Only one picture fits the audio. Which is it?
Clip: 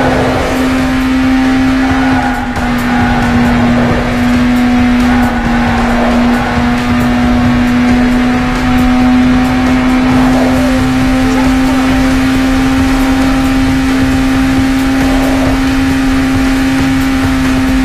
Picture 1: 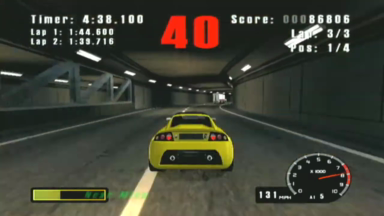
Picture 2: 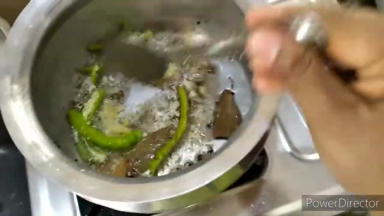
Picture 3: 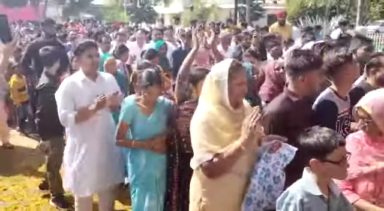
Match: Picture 1